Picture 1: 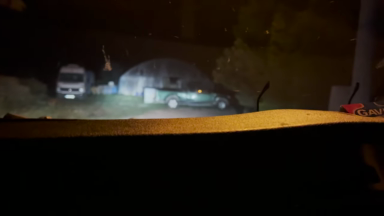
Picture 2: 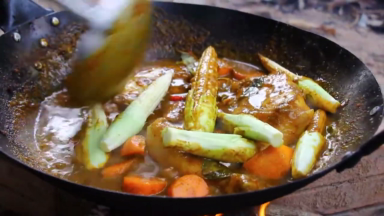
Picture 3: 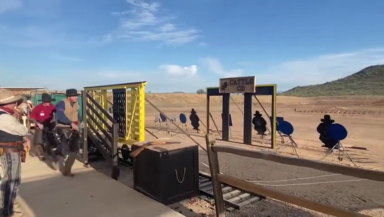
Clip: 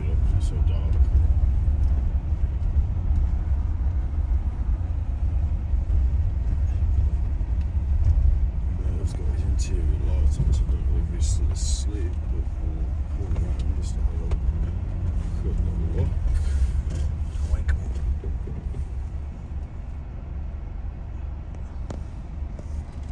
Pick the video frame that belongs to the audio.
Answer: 1